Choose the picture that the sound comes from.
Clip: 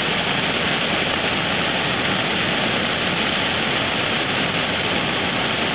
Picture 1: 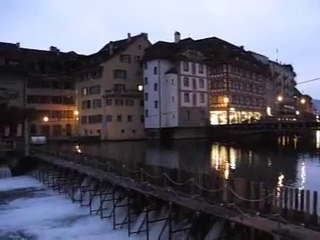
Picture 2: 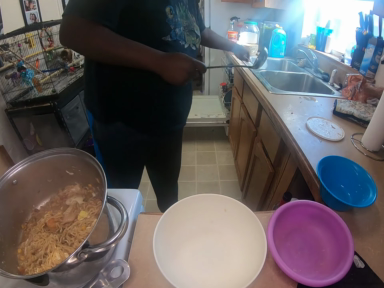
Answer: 1